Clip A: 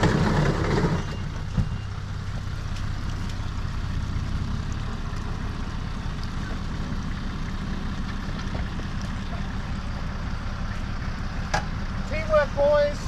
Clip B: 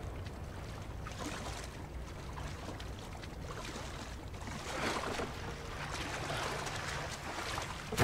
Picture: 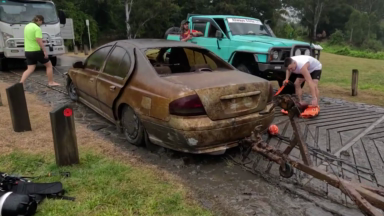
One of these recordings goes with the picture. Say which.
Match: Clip A